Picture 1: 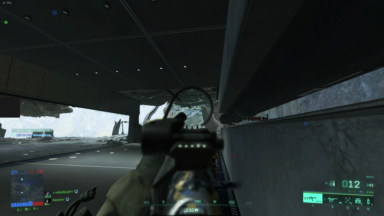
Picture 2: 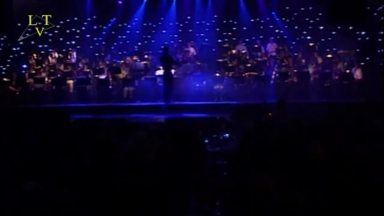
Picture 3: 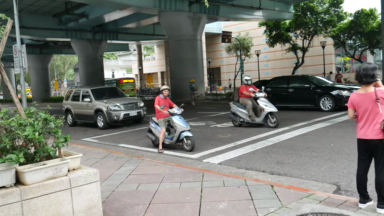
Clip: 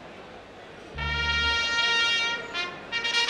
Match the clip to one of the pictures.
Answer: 2